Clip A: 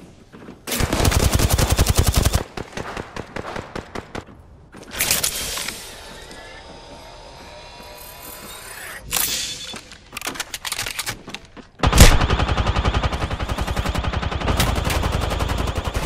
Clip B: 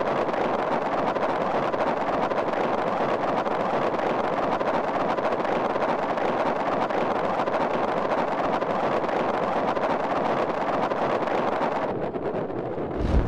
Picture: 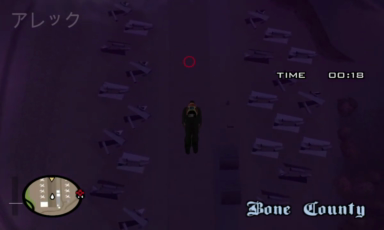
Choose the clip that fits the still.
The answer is B